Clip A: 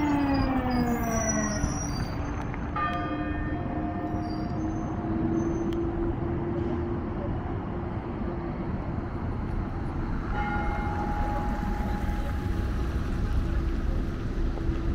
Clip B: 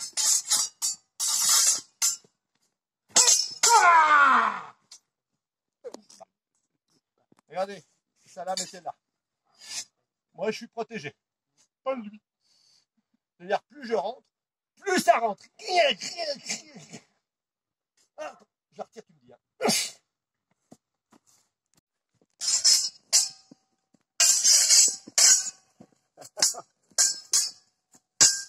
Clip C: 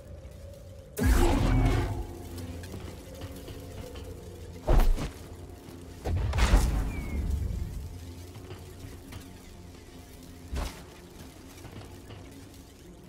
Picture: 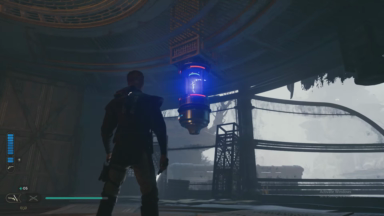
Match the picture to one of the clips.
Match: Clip C